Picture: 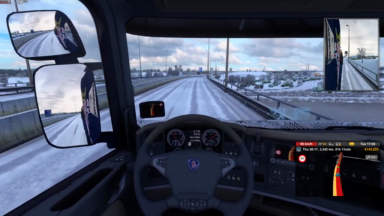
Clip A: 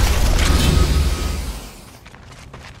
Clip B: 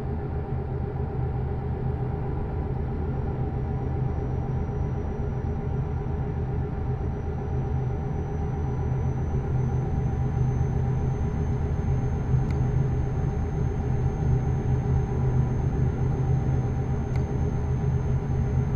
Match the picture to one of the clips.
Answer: B